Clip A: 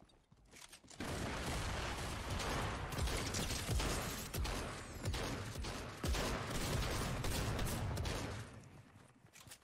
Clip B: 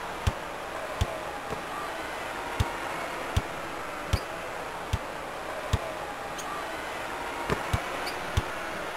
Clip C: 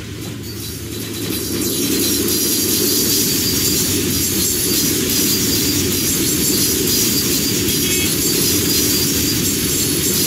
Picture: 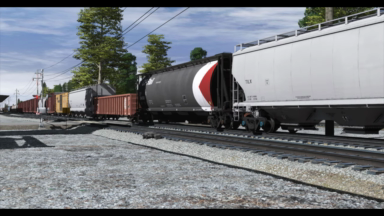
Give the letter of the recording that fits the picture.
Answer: C